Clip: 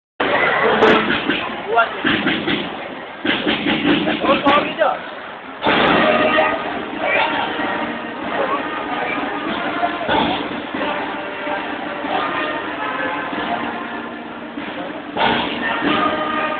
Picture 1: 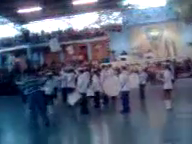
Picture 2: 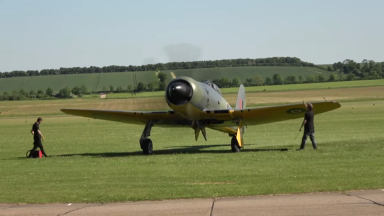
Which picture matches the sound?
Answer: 1